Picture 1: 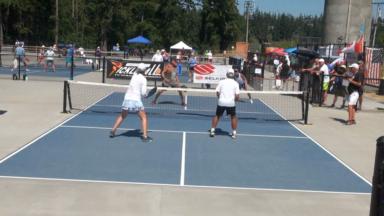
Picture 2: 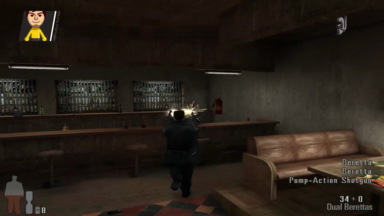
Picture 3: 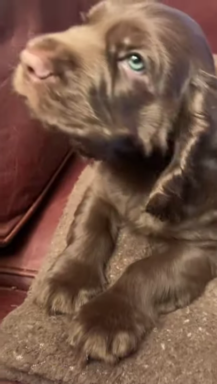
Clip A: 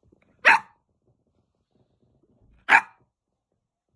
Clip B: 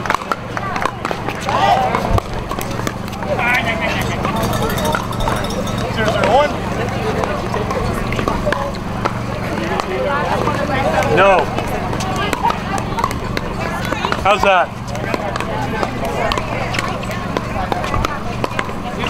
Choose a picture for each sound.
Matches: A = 3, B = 1